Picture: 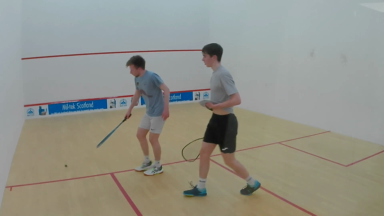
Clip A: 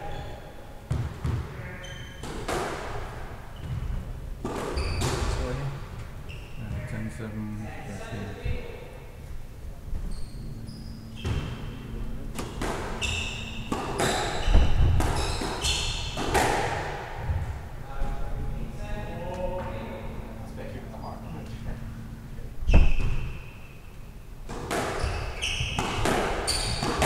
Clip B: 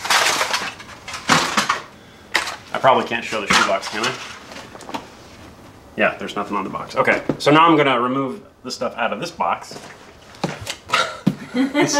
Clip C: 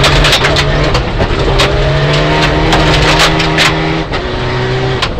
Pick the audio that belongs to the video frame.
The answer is A